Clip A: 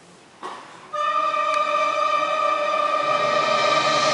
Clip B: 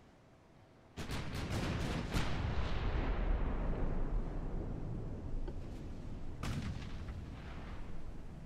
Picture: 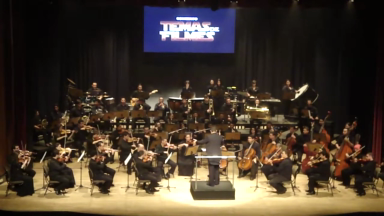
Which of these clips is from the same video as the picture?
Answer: A